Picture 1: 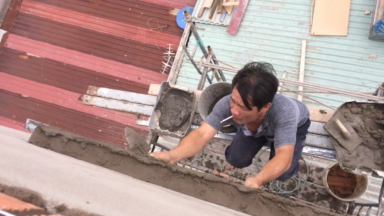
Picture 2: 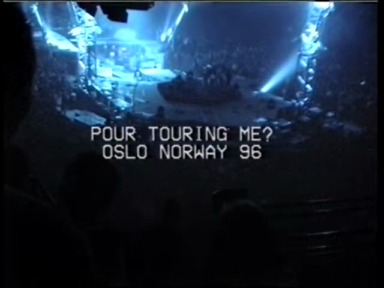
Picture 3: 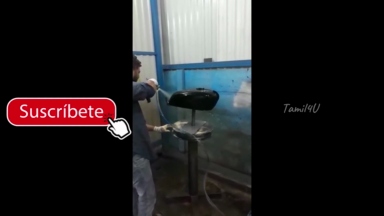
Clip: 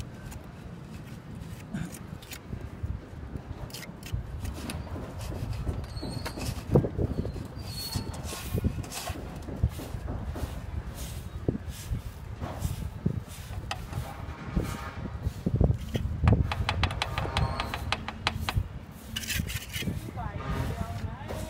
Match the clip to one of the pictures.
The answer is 1